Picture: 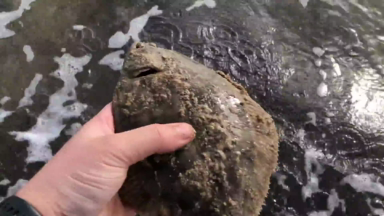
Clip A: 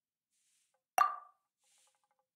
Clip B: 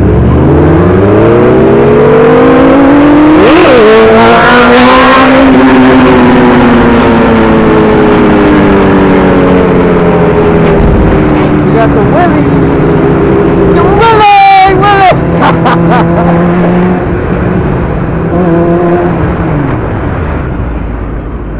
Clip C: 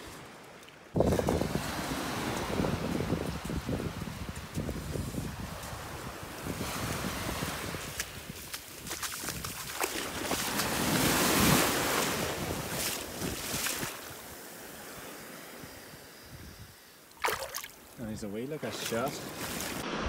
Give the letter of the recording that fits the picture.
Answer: C